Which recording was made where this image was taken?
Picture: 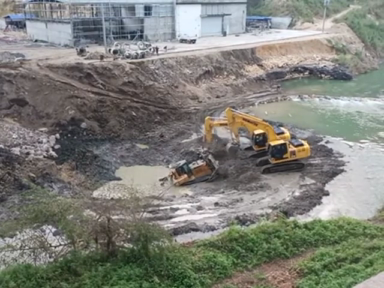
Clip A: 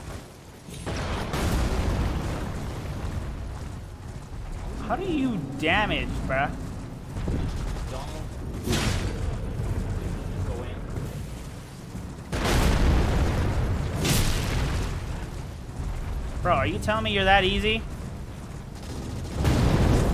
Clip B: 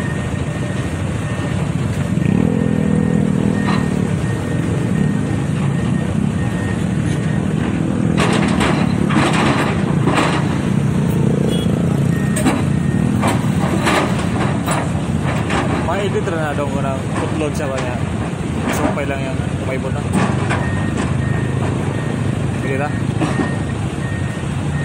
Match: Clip B